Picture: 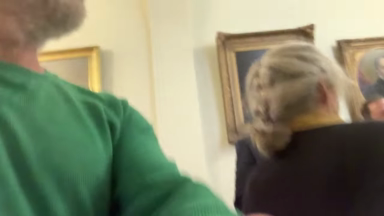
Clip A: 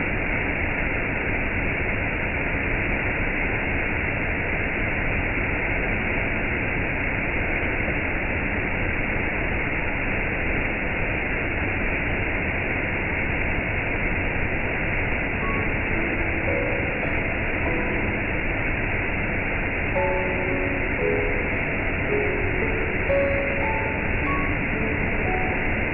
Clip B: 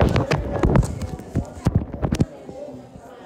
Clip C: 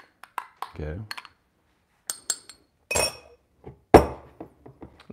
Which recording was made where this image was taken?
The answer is B